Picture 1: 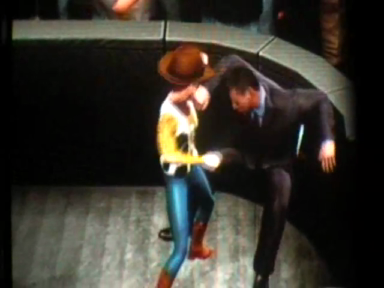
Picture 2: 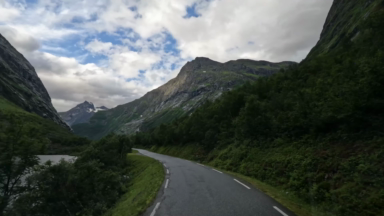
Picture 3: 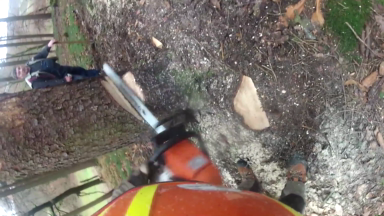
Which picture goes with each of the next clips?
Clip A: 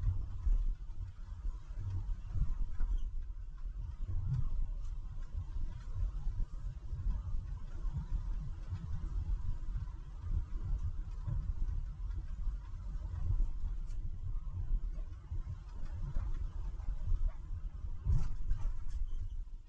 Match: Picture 2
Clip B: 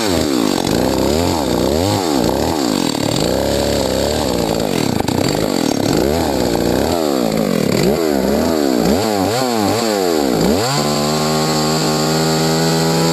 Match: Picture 3